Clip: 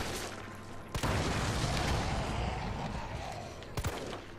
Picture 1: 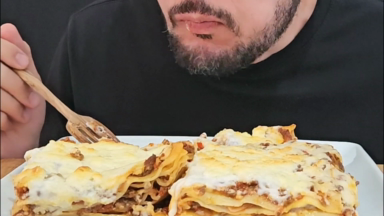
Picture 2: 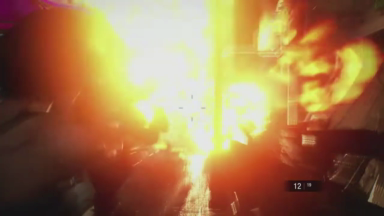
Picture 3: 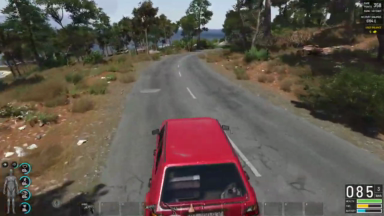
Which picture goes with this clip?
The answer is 2